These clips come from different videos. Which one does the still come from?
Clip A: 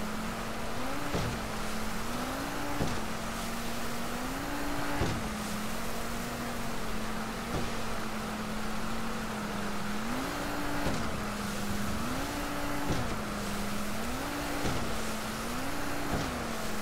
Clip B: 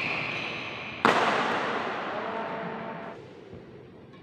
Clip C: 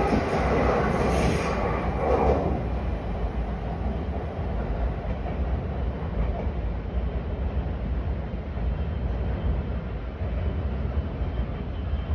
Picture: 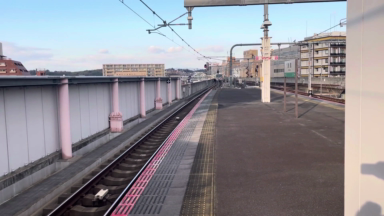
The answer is C